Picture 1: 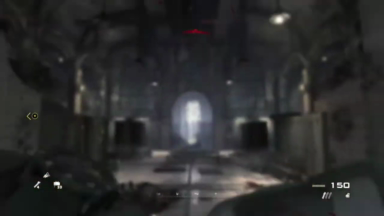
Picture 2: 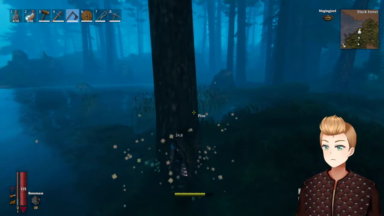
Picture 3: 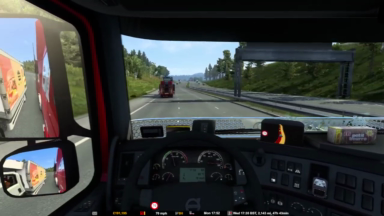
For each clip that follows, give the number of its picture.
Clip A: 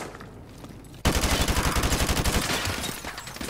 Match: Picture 1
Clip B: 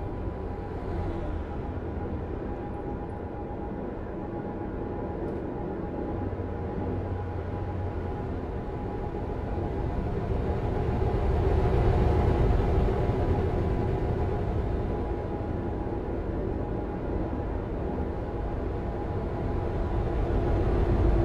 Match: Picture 3